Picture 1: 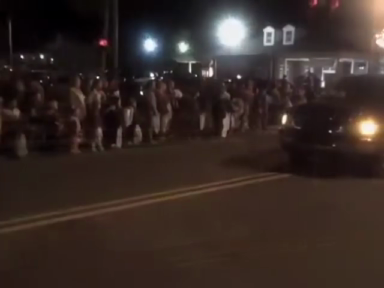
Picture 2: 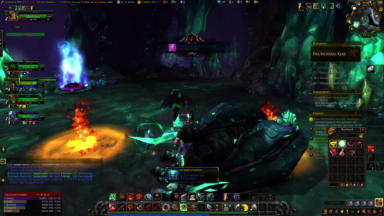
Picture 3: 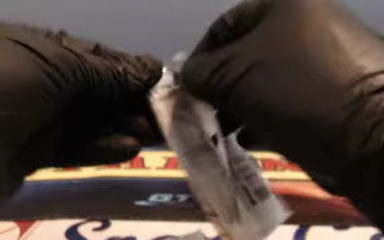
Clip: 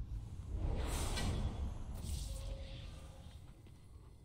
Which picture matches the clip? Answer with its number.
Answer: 2